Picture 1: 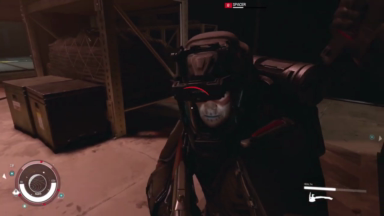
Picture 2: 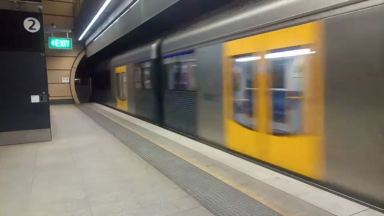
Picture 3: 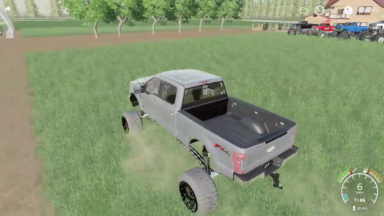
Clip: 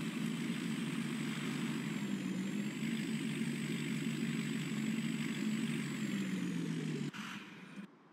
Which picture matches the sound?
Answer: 3